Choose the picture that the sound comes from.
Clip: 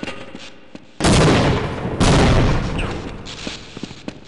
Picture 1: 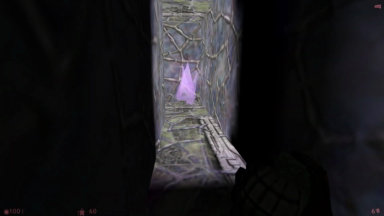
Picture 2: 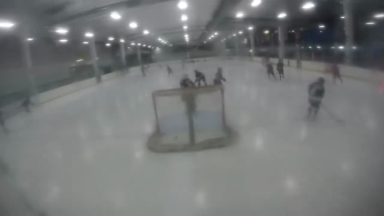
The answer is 1